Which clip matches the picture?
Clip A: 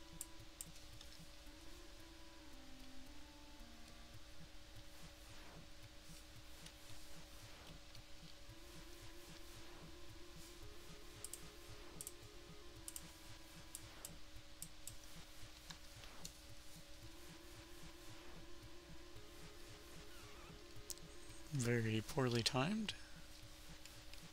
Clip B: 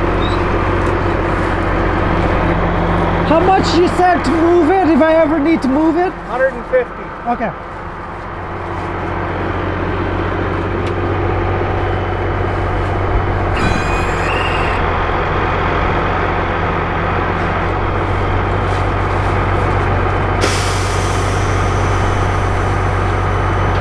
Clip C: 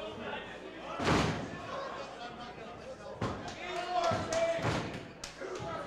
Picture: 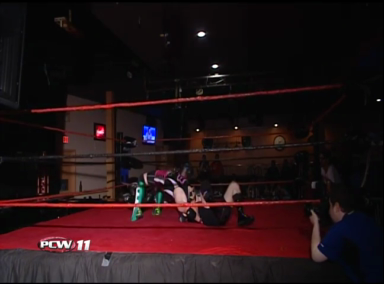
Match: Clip C